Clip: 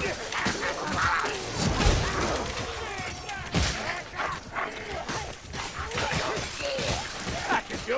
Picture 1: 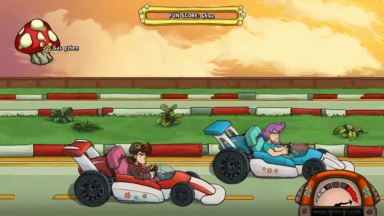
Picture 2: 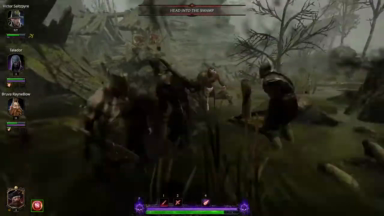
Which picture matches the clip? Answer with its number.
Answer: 2